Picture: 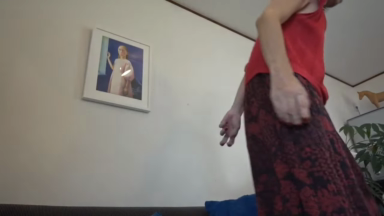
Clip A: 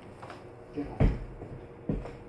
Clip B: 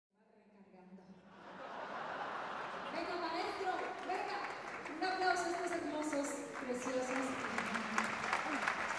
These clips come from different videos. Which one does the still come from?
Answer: A